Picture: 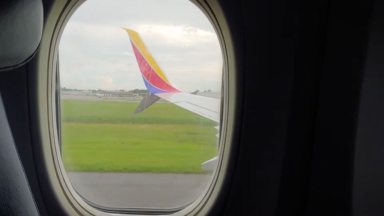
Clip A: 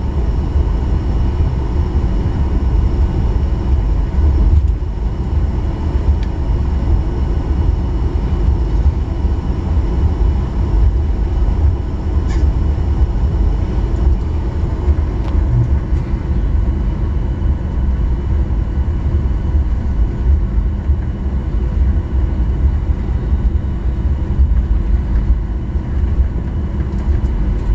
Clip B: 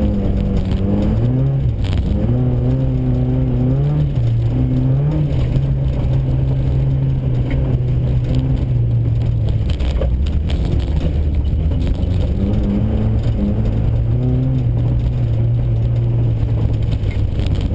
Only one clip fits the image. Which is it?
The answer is A